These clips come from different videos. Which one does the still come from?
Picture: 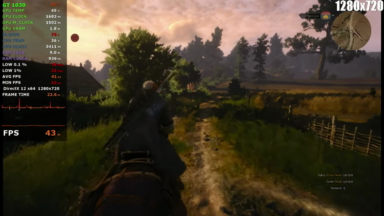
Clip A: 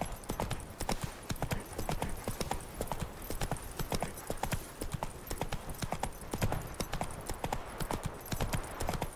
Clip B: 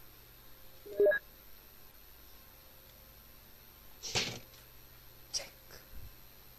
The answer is A